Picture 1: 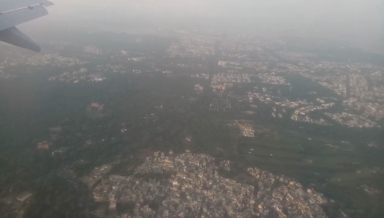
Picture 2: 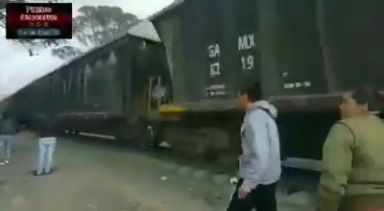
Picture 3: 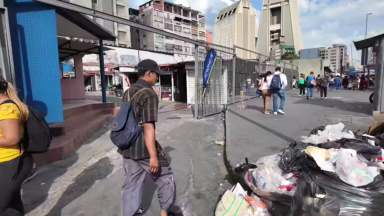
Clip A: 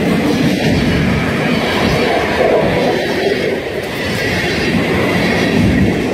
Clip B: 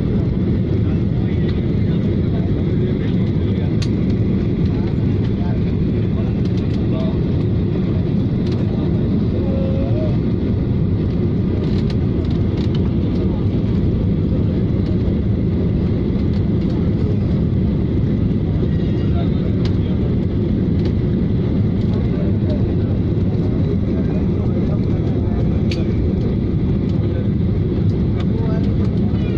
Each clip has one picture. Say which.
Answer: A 2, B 1